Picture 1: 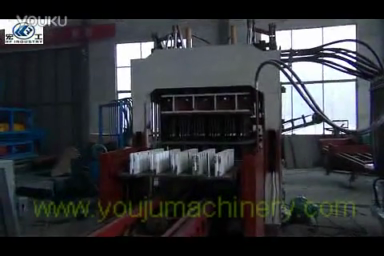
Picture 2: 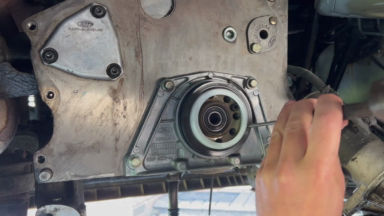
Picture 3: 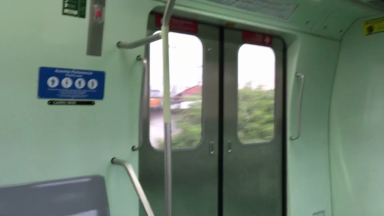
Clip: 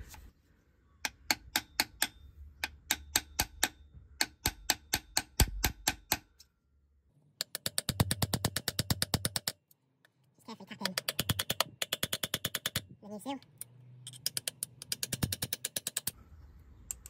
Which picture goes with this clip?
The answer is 2